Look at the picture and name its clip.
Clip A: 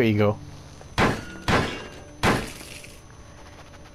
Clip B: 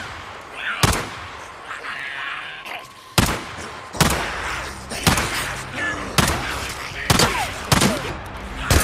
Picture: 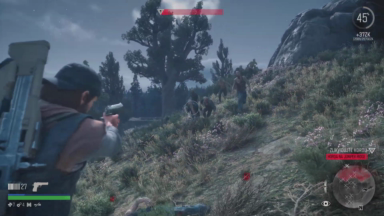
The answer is B